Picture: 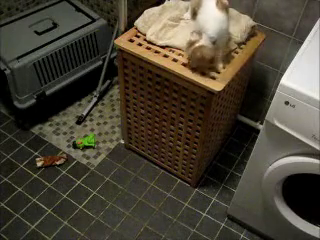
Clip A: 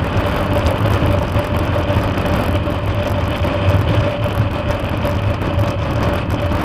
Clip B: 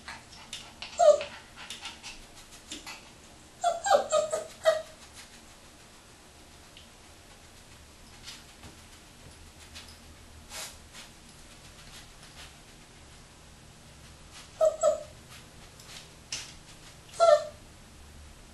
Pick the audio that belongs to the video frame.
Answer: B